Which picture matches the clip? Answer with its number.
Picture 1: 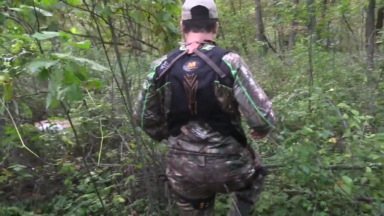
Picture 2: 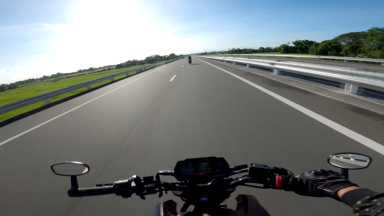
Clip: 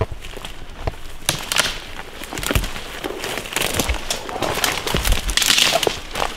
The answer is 1